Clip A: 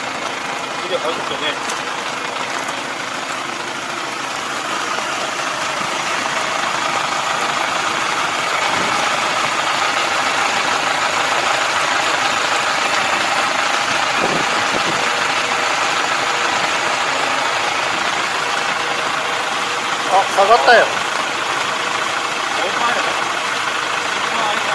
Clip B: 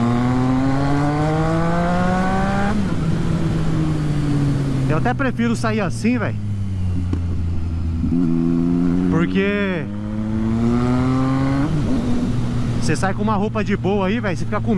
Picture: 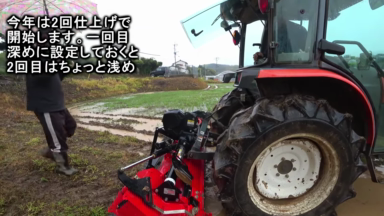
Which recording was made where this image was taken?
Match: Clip A